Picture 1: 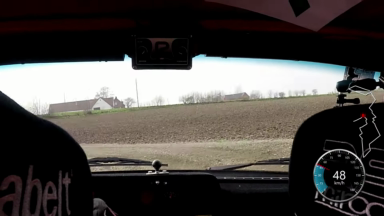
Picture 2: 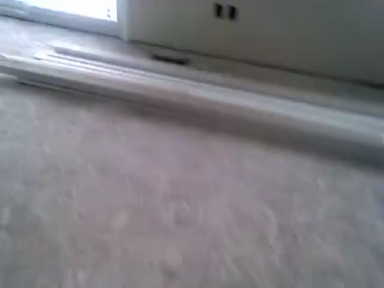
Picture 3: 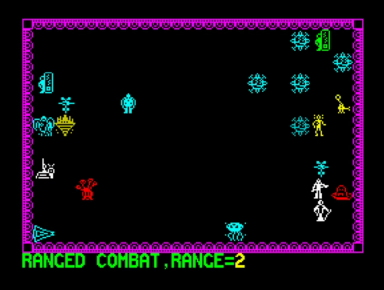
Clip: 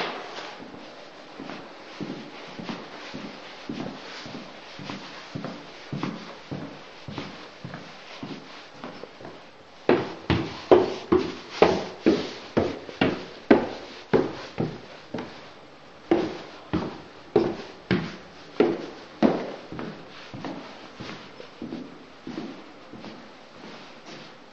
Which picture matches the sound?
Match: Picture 2